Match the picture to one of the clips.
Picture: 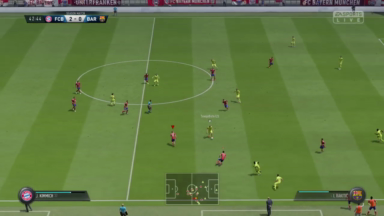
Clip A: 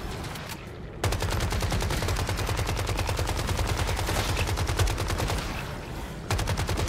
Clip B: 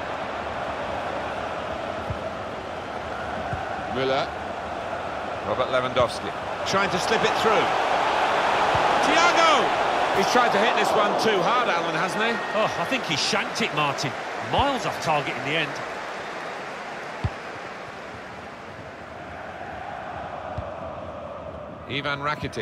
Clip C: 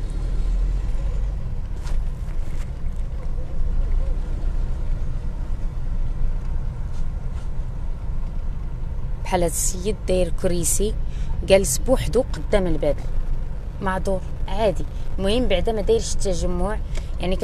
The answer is B